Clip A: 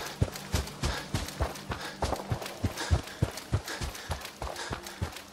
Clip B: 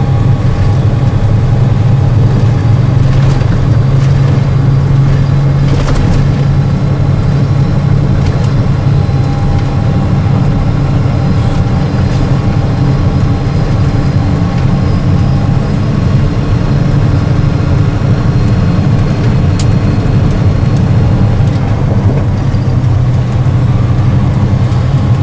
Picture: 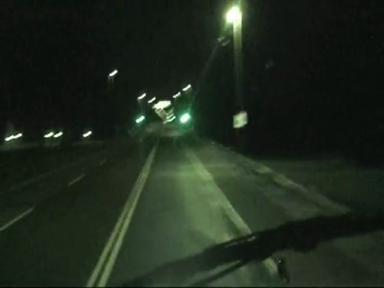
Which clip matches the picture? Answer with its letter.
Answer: B